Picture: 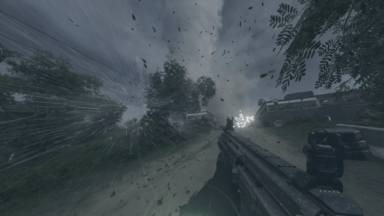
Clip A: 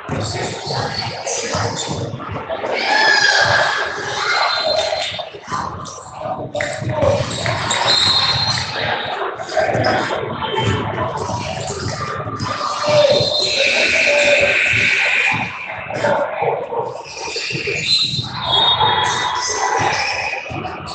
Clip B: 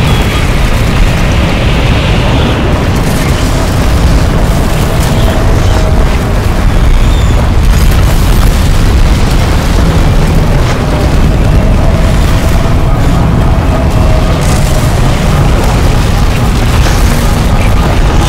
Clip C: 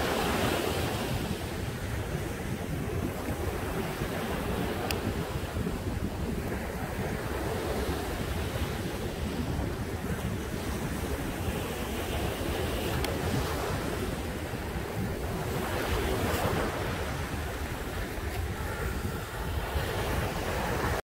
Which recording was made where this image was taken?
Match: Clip B